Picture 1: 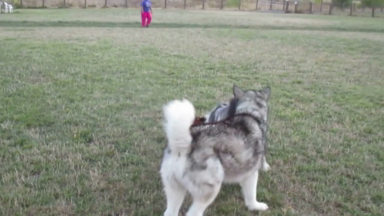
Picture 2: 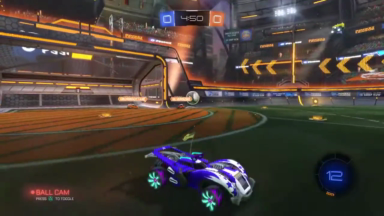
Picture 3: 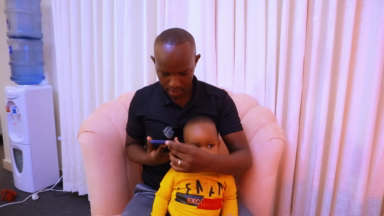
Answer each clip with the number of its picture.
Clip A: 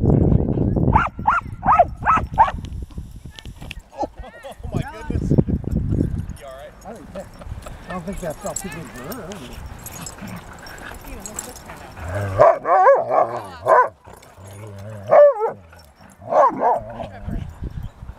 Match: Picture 1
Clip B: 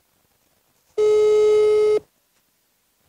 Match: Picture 3